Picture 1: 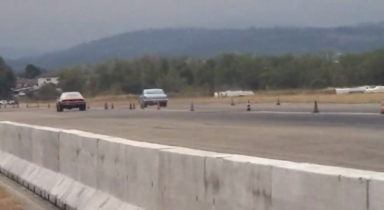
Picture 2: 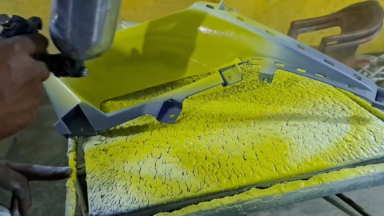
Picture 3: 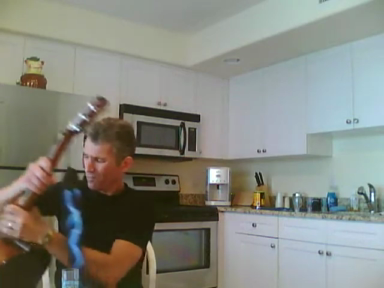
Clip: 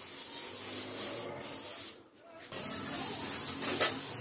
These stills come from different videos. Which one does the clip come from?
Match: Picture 2